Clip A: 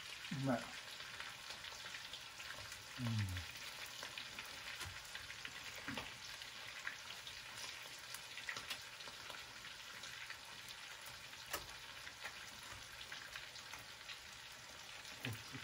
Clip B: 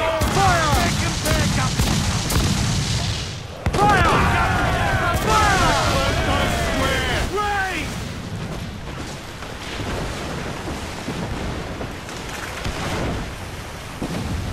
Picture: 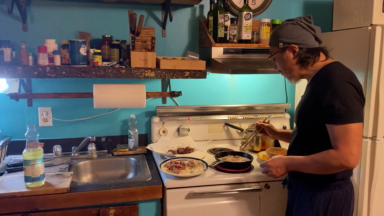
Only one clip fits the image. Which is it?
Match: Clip A